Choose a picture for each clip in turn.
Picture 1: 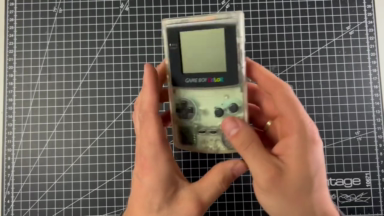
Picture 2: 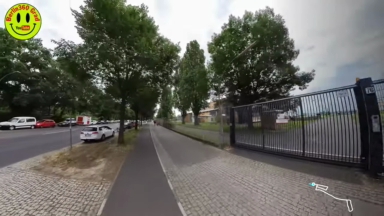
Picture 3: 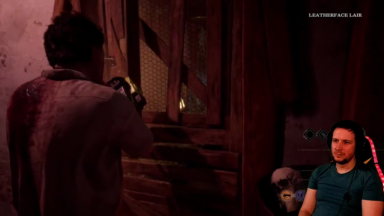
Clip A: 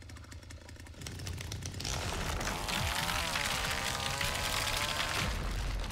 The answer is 3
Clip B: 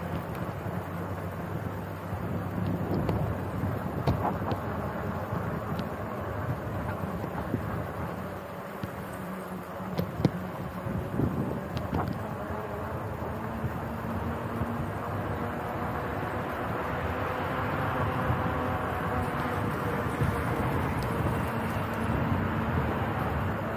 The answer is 2